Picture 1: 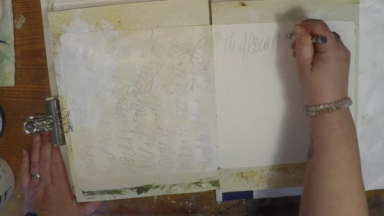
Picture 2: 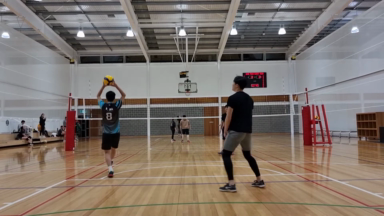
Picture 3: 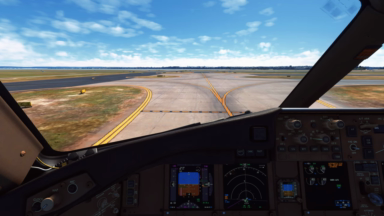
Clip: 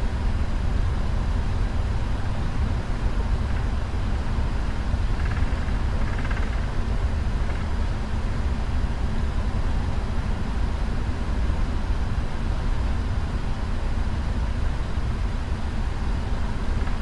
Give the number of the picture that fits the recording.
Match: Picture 3